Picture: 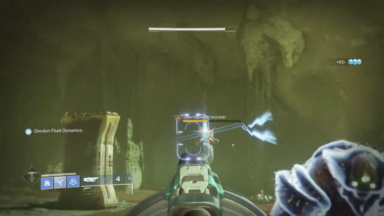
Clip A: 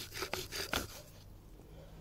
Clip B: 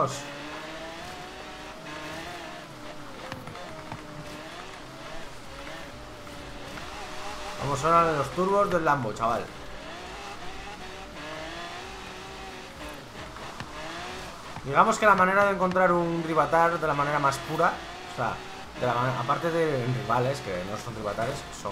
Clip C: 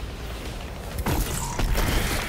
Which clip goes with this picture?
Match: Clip C